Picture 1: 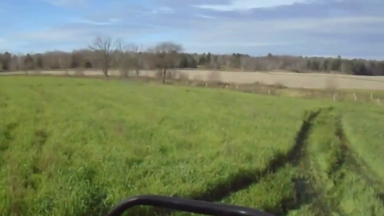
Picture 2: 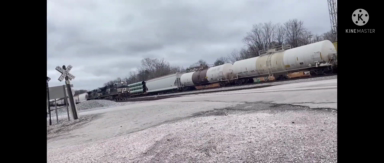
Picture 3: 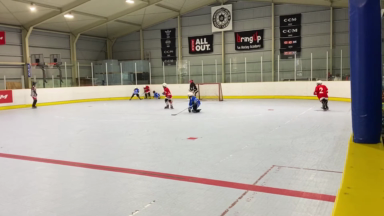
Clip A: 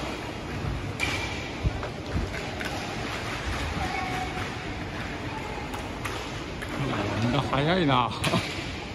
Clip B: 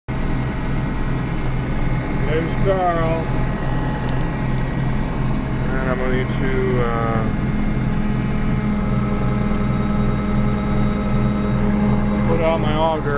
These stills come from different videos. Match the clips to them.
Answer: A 3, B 1